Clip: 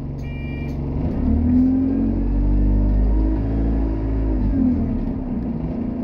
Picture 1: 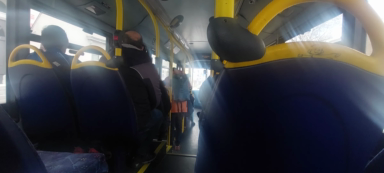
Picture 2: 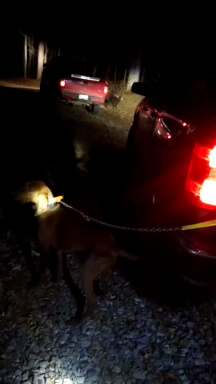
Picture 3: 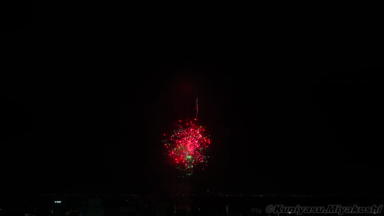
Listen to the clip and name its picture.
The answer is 1